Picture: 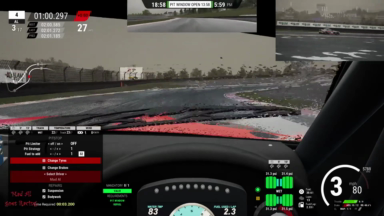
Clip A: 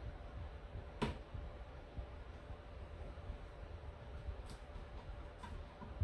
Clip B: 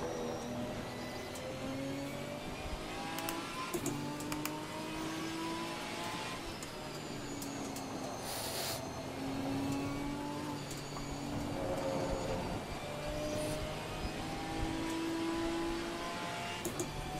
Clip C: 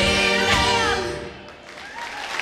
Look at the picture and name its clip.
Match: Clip B